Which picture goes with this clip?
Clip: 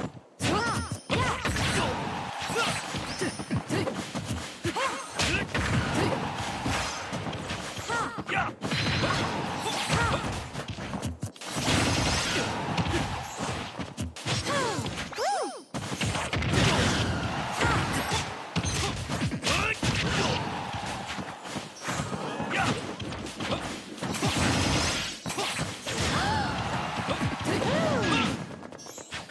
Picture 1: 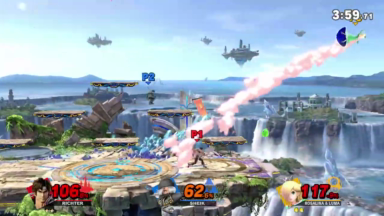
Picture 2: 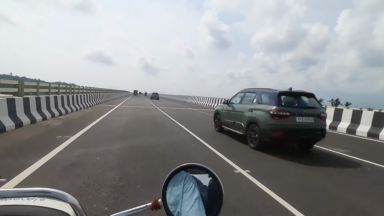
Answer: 1